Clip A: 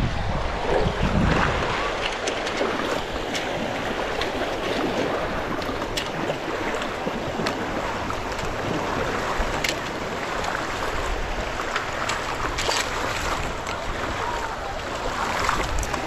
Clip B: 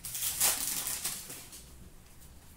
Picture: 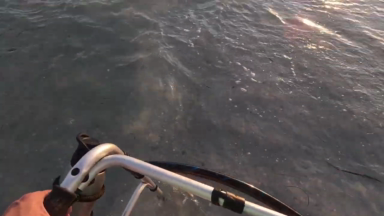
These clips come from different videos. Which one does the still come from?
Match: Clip A